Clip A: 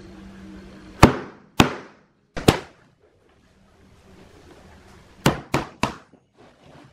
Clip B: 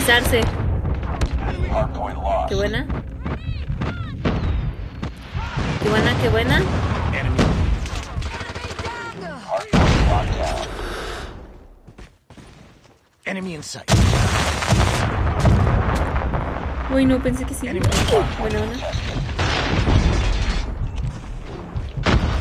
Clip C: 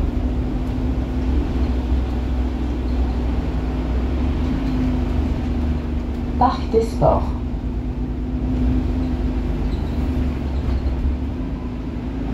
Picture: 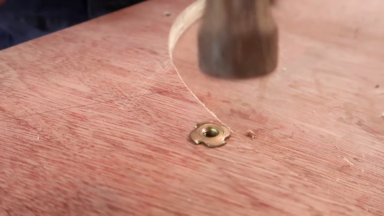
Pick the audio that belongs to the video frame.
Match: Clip A